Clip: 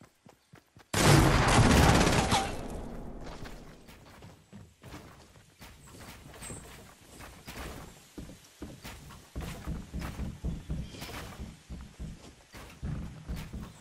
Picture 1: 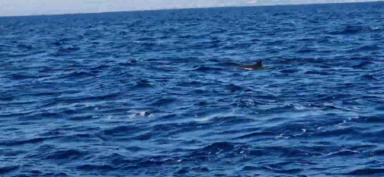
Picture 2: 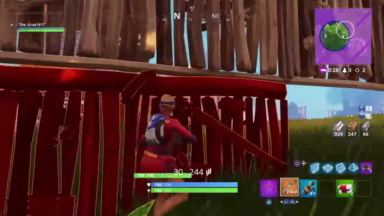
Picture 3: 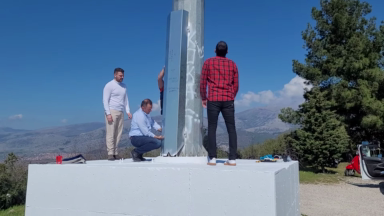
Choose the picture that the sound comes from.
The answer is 2